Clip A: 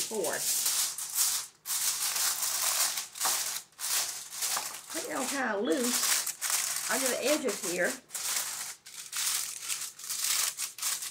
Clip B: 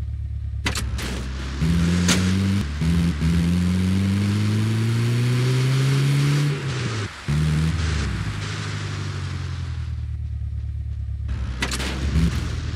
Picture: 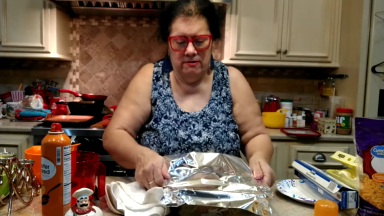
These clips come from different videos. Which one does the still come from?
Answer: A